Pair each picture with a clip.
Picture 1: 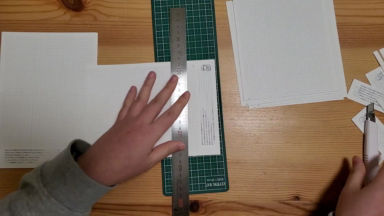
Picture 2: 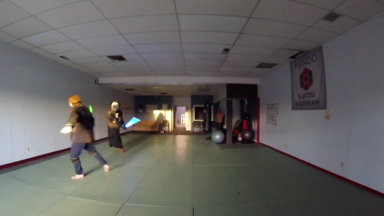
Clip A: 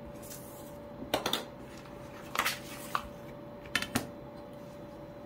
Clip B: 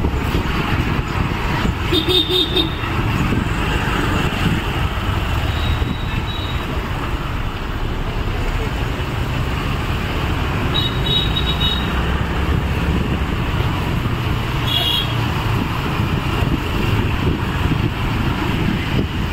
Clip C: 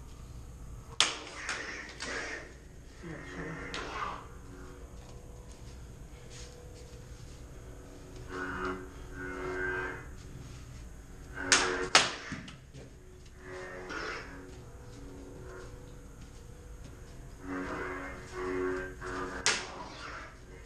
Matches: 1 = A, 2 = C